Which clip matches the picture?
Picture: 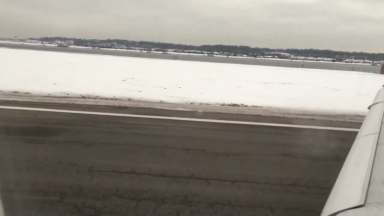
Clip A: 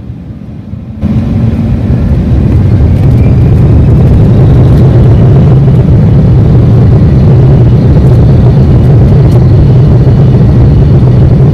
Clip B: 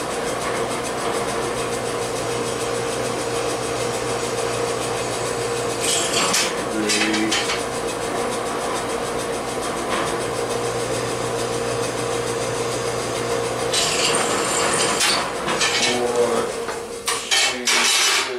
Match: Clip A